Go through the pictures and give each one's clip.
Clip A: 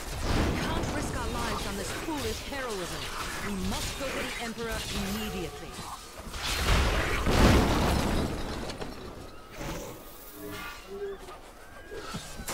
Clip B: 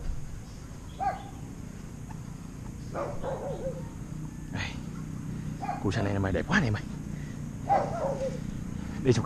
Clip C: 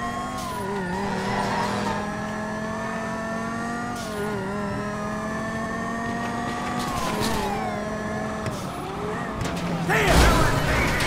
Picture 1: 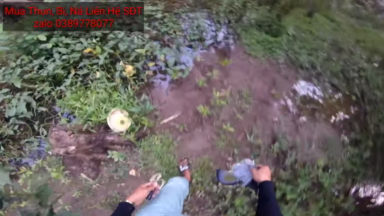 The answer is B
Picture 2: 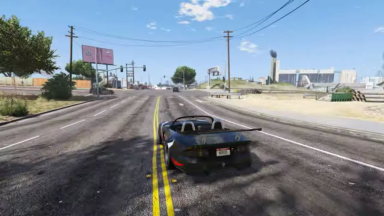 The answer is C